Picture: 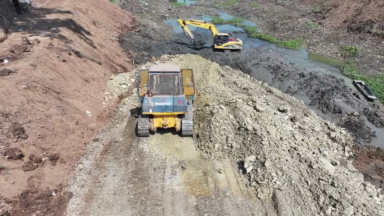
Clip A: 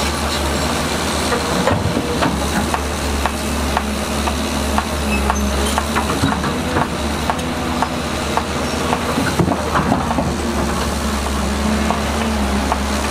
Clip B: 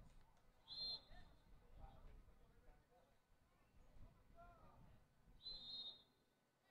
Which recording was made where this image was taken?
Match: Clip A